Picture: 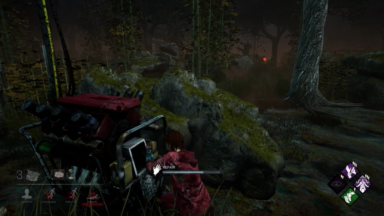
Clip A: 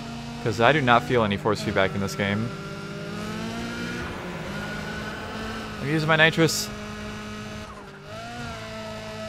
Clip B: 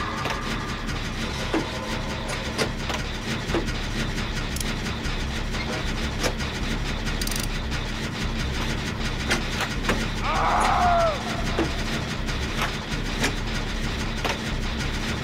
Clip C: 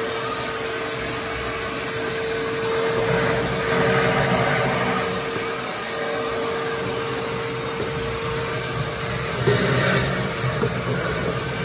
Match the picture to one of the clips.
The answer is B